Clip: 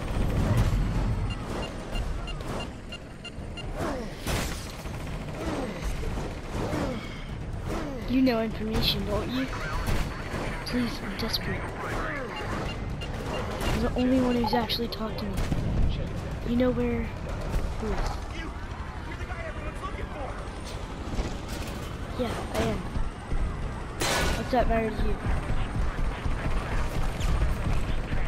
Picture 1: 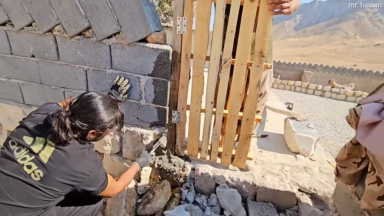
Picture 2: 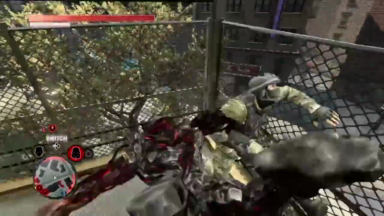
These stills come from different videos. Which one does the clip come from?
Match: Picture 2